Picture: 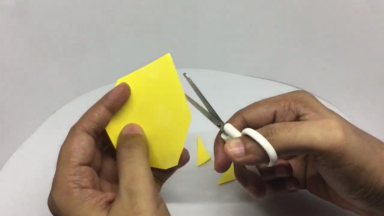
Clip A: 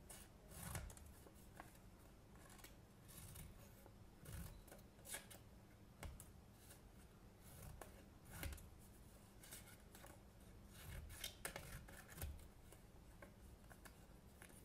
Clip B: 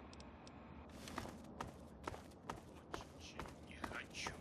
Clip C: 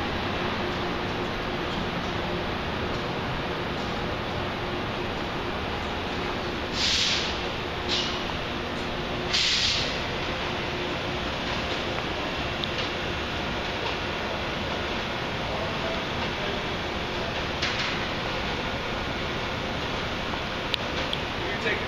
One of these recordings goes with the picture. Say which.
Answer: A